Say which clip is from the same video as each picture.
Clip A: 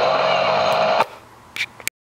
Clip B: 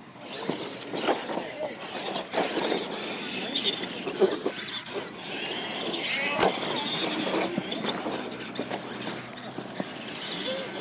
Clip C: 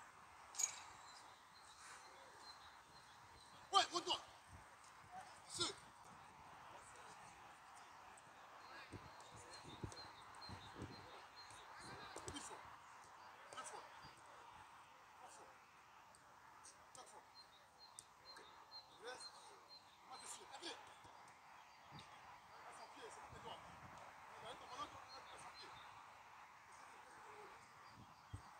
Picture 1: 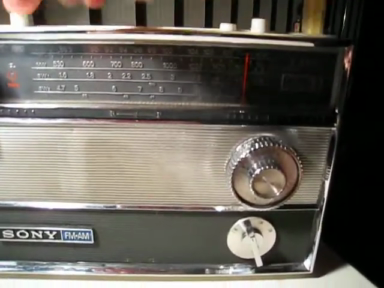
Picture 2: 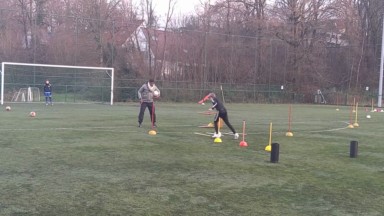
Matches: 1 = A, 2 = C